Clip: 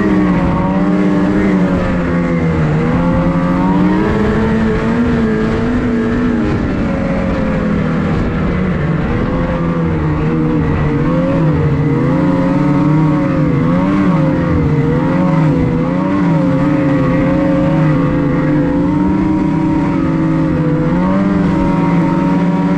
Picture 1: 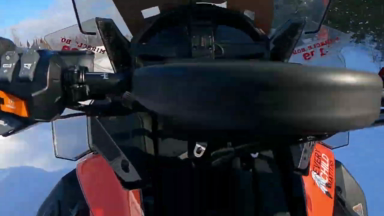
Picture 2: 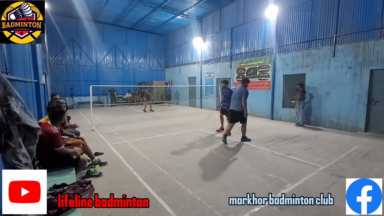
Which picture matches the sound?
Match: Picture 1